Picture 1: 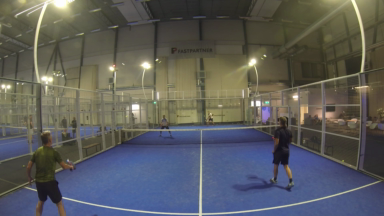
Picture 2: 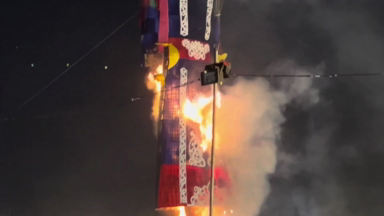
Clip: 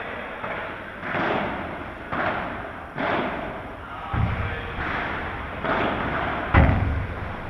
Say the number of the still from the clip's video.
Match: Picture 1